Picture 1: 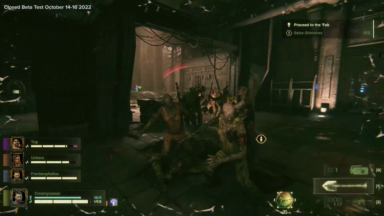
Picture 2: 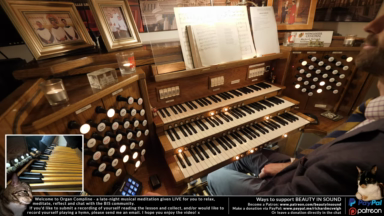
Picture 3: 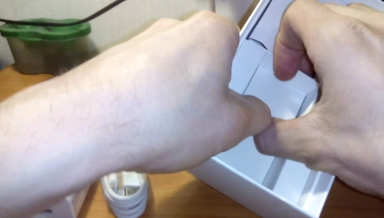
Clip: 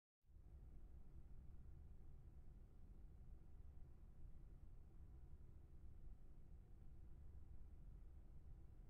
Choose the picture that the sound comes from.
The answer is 2